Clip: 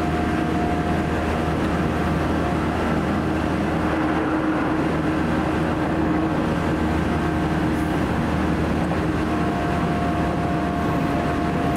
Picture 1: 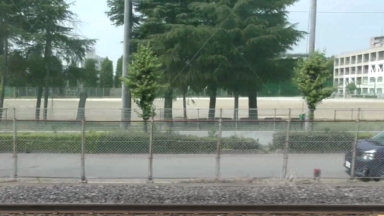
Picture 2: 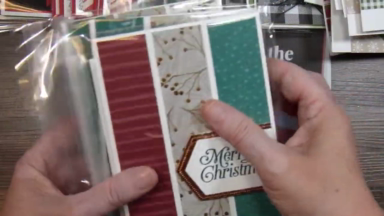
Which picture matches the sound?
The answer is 1